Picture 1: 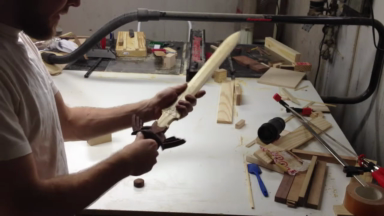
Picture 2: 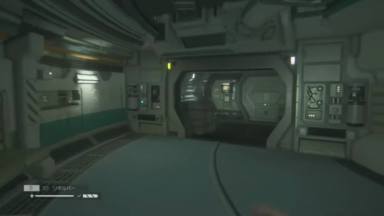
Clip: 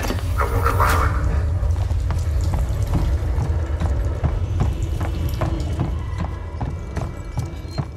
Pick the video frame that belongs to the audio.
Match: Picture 2